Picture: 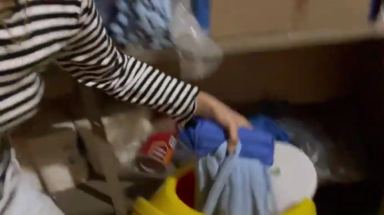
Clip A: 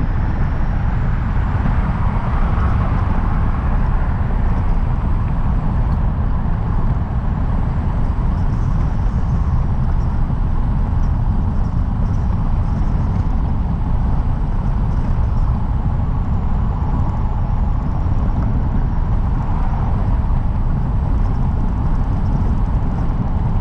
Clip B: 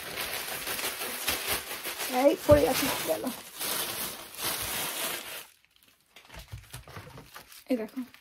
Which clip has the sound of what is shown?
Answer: B